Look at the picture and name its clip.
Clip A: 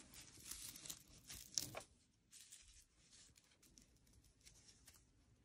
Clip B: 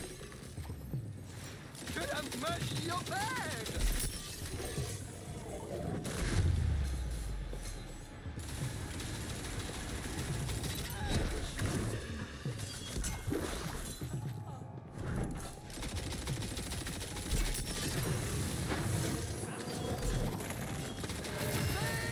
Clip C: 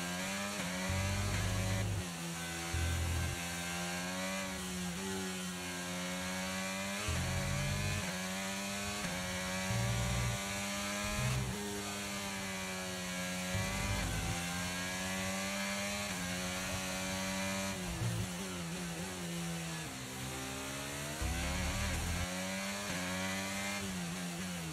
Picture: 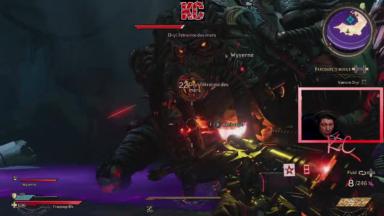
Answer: B